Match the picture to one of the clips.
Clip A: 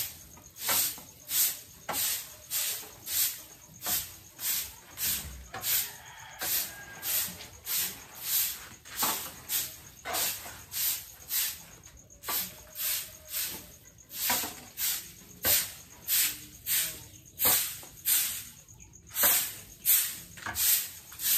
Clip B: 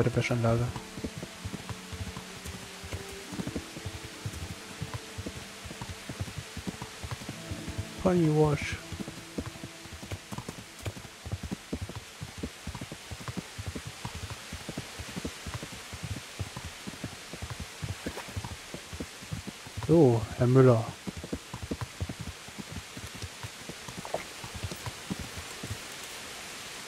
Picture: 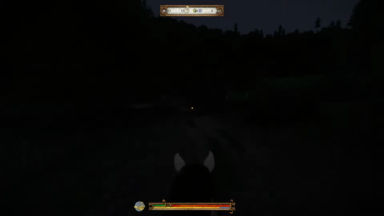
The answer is B